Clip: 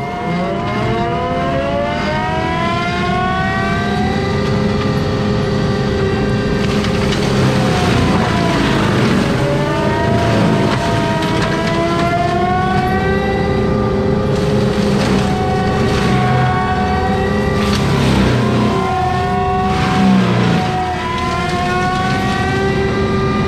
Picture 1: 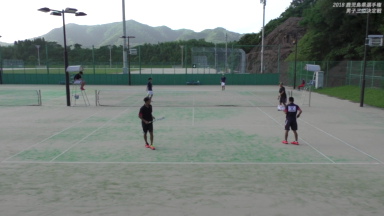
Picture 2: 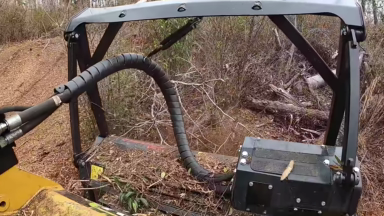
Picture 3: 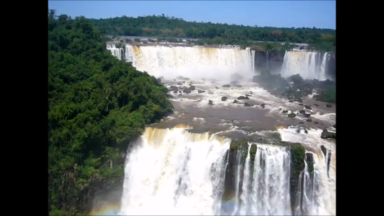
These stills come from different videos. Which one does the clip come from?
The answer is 2